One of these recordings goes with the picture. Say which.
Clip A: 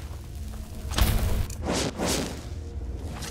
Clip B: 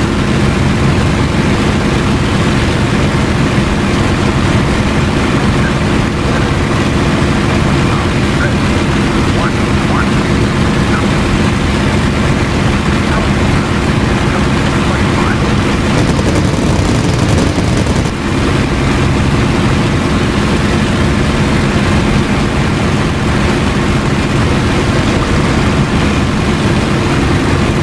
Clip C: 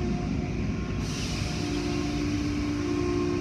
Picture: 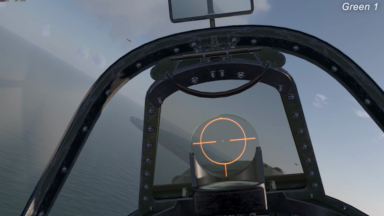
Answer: B